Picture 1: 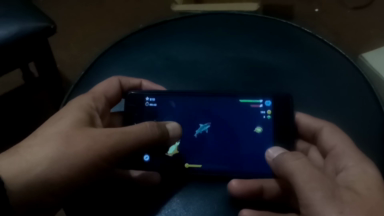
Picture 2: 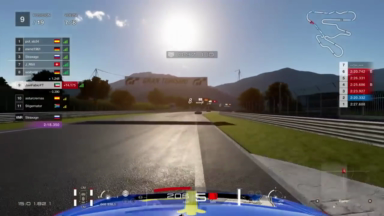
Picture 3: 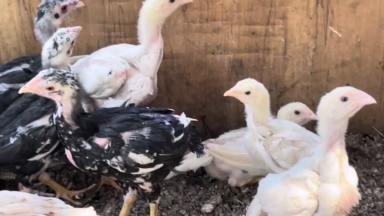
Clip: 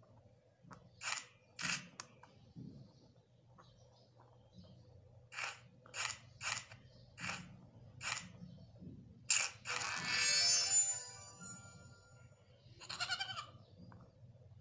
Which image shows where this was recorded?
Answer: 1